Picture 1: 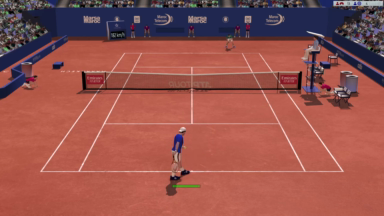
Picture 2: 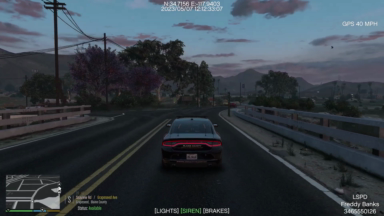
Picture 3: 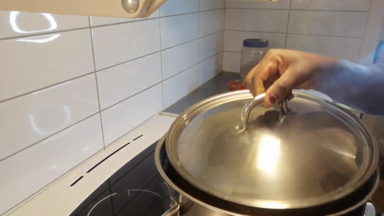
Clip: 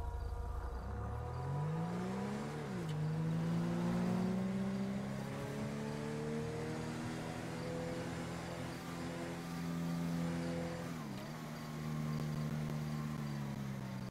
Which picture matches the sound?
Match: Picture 2